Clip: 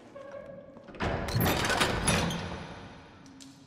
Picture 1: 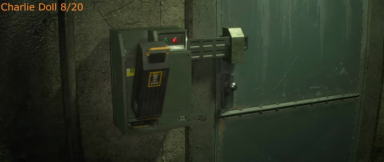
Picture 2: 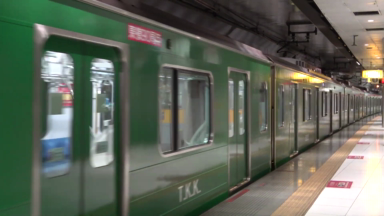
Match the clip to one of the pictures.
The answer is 1